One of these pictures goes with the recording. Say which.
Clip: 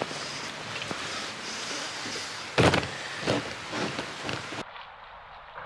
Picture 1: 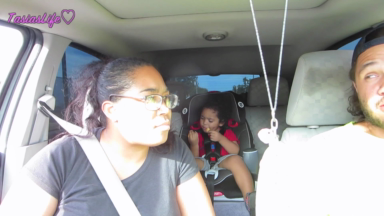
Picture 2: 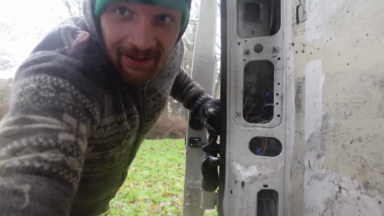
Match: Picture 2